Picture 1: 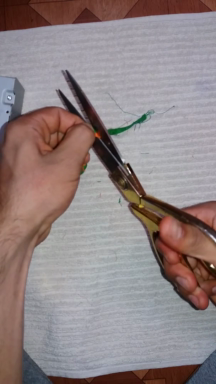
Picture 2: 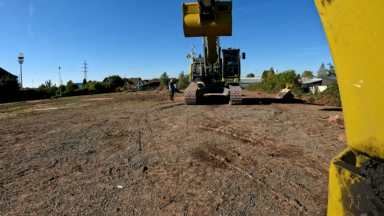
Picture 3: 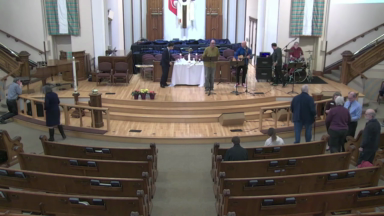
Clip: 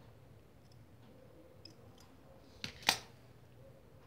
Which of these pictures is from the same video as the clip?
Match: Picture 1